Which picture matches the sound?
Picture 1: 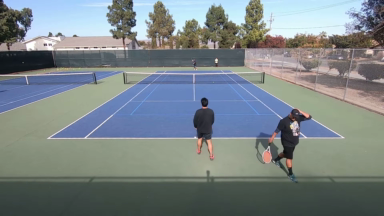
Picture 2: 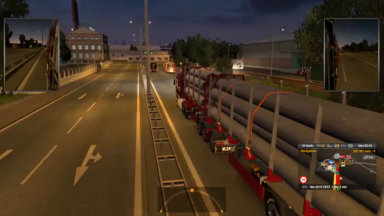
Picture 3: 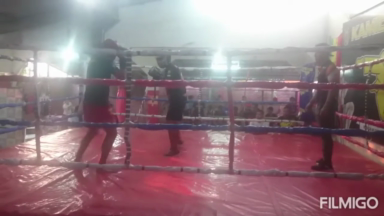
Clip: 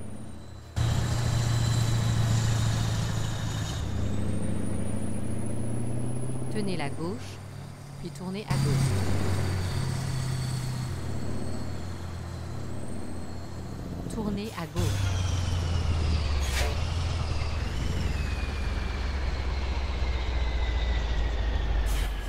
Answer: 2